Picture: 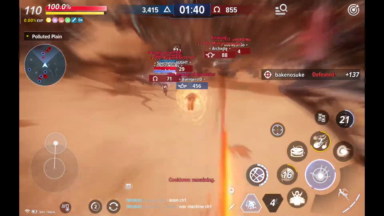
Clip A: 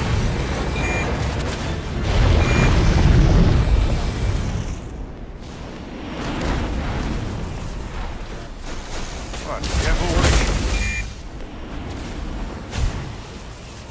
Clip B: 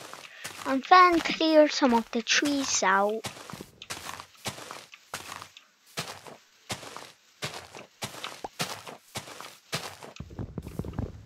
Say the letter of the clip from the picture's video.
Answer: A